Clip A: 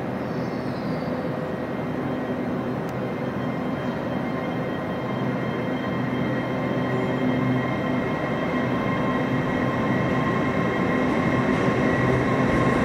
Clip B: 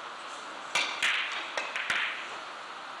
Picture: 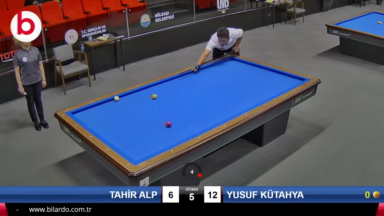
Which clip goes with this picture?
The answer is B